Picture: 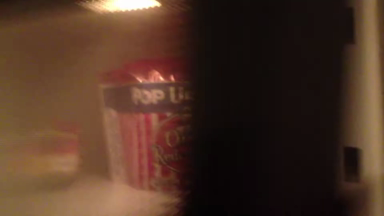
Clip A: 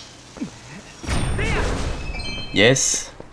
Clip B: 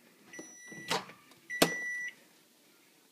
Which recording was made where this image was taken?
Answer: B